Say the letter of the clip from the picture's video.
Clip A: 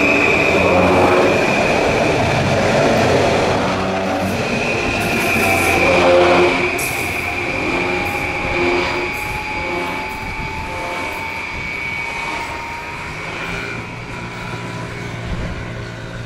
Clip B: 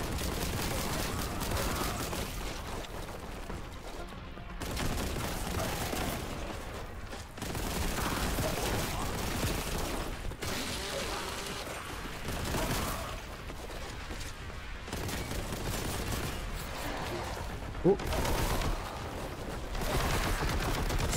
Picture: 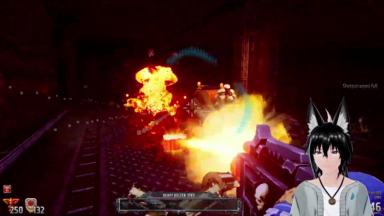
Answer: B